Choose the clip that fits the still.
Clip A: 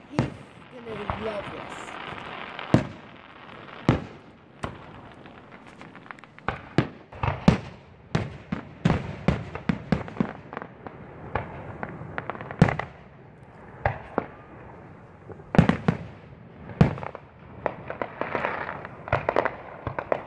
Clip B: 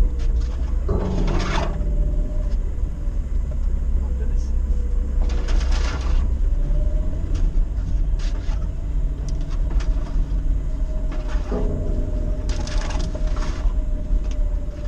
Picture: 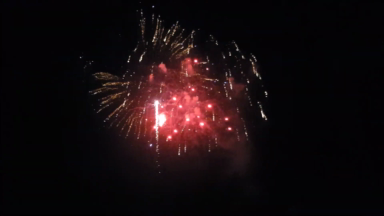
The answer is A